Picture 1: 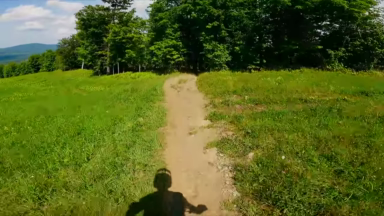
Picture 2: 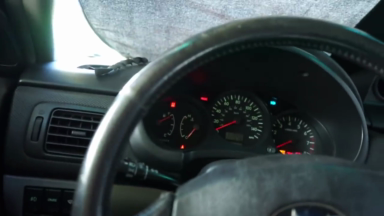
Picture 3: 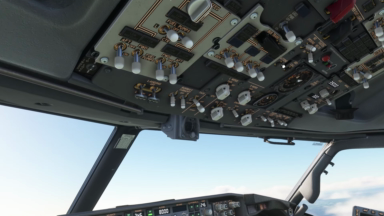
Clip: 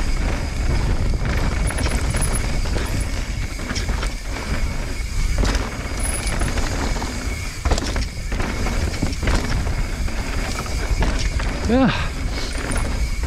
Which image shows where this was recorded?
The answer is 1